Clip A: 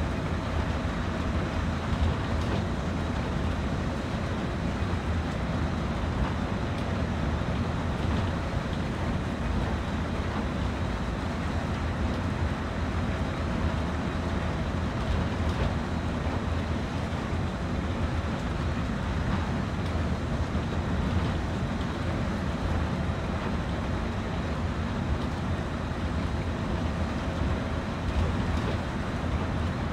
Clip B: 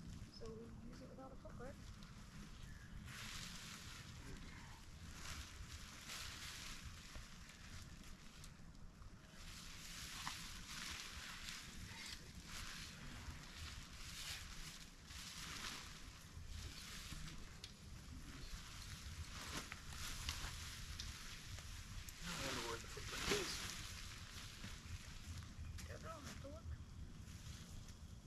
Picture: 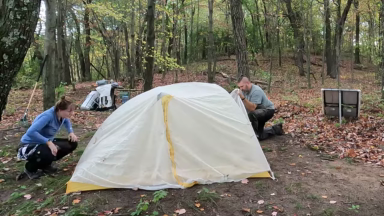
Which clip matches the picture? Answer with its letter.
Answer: B